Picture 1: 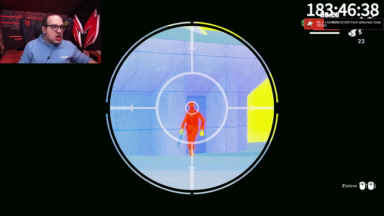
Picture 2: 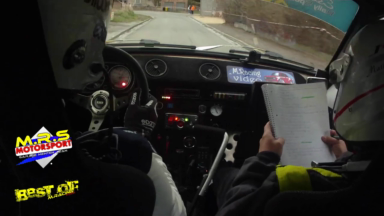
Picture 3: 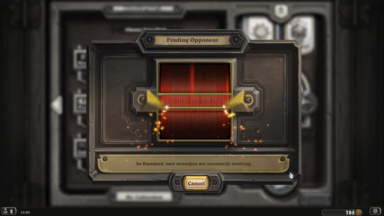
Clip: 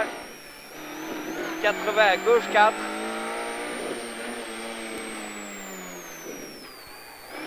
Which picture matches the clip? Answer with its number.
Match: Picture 2